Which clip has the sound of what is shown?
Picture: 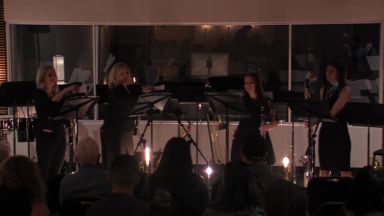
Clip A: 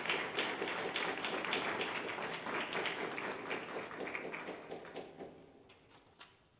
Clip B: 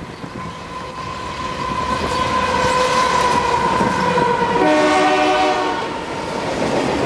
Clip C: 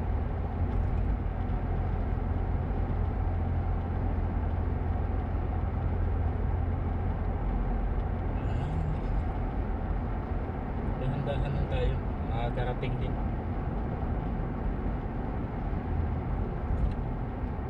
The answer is A